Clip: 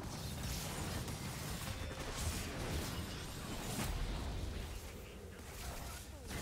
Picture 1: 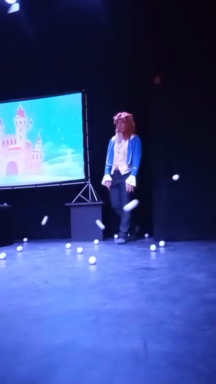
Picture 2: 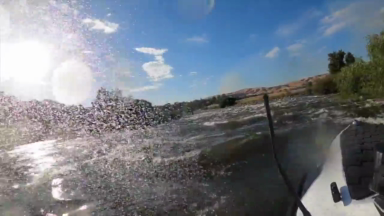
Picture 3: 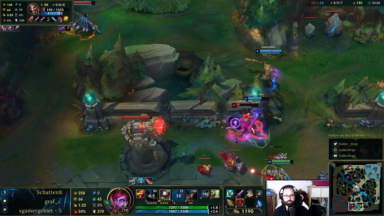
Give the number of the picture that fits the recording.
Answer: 3